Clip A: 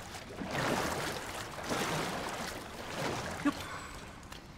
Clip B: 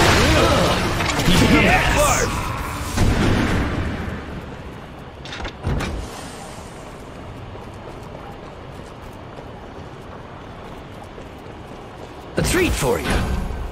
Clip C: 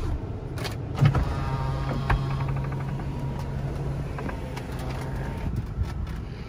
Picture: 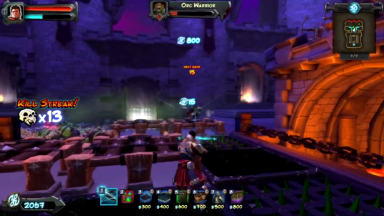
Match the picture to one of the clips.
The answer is B